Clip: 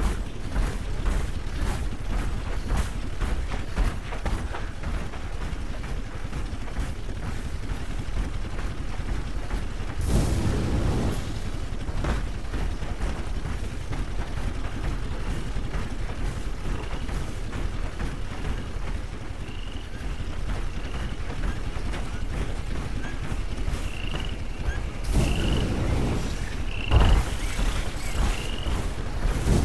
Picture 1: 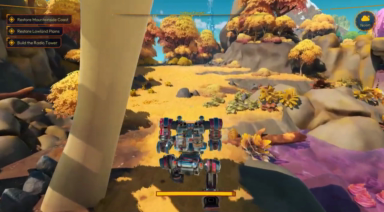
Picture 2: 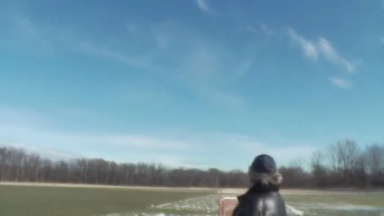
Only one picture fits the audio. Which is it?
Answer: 1